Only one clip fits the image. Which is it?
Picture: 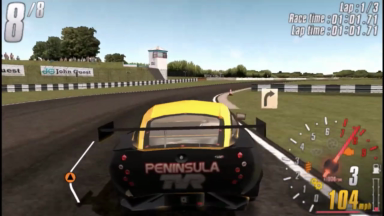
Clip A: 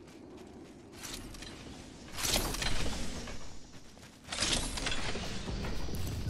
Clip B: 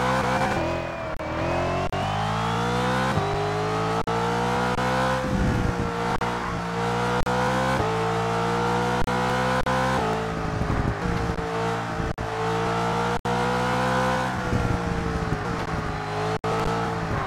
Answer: B